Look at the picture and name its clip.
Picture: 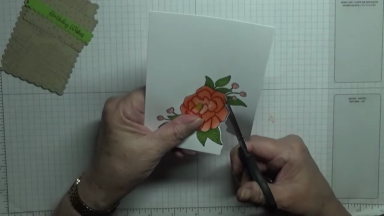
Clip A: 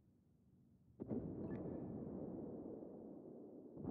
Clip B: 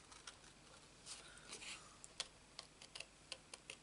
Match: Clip B